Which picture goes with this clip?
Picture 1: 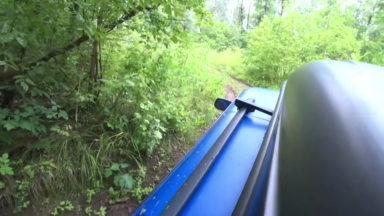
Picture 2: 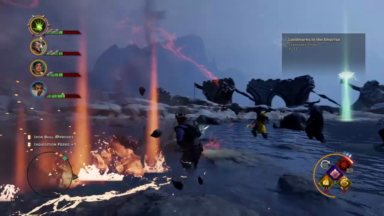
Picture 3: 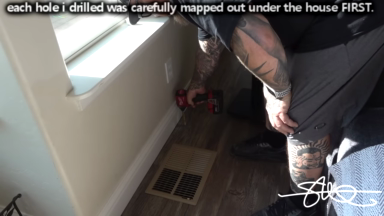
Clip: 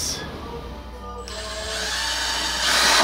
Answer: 3